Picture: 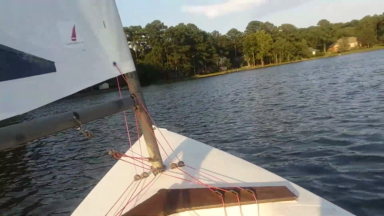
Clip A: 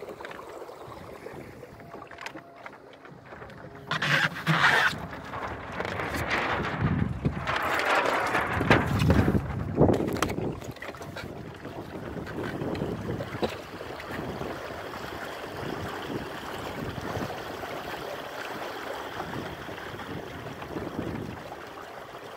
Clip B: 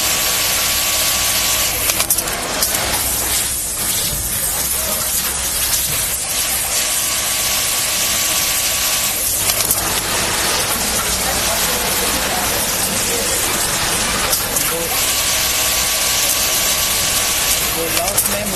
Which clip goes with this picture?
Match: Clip A